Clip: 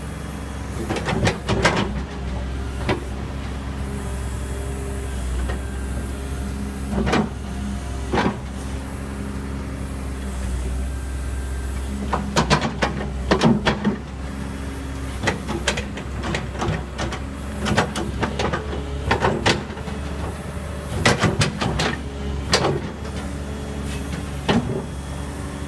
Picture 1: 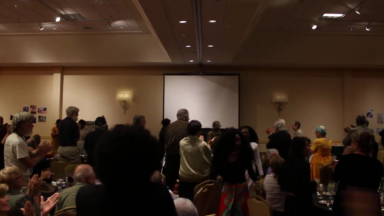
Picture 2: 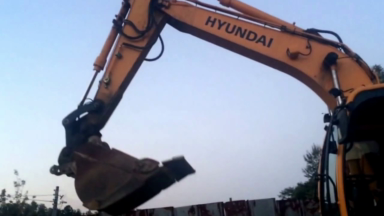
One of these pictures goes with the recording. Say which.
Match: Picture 2